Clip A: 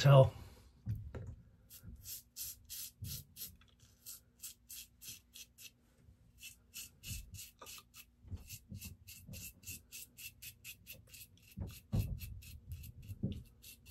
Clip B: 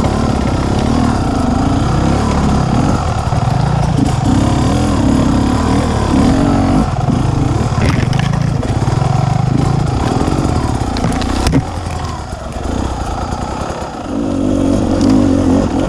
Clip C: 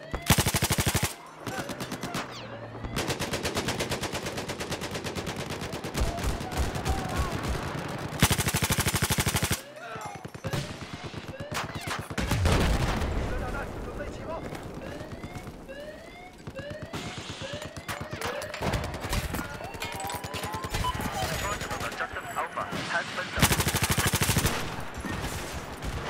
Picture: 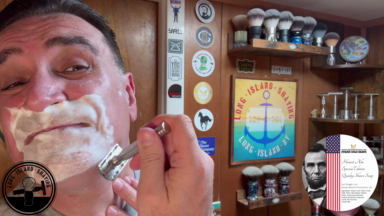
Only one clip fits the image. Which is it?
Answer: A